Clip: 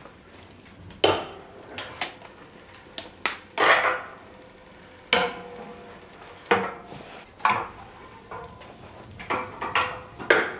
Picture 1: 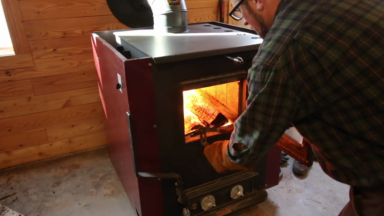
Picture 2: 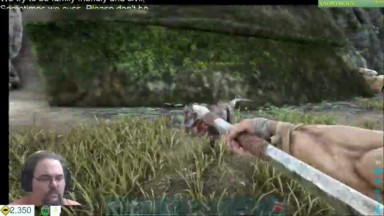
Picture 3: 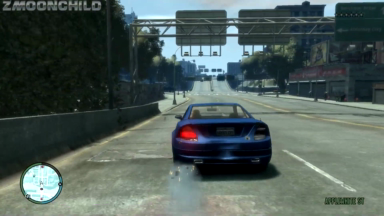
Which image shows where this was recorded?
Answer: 1